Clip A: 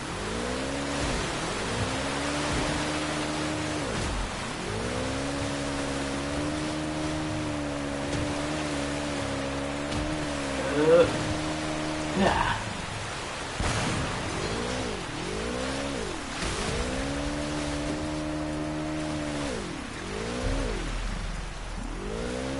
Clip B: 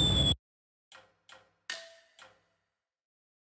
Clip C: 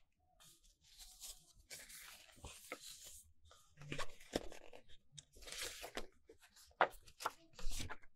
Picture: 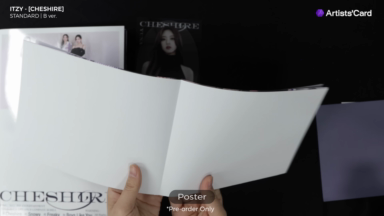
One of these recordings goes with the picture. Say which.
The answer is C